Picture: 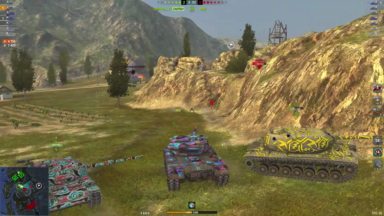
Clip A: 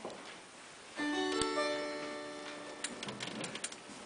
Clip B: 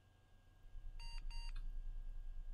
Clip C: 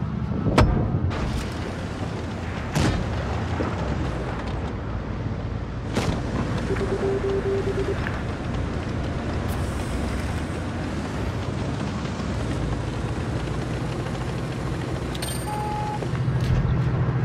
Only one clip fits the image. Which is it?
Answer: C